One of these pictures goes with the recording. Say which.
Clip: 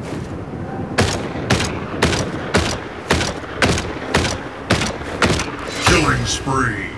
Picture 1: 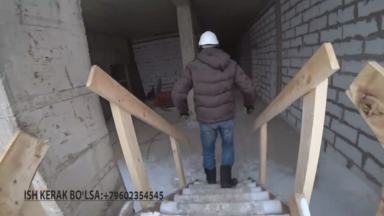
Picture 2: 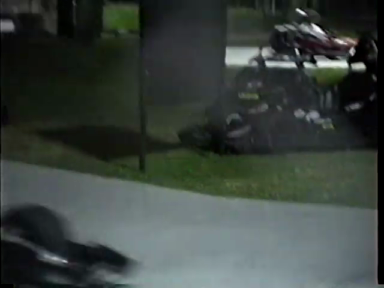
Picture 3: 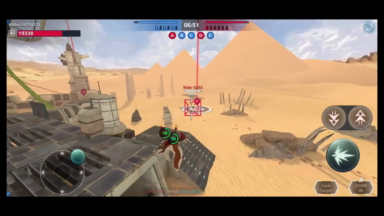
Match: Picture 3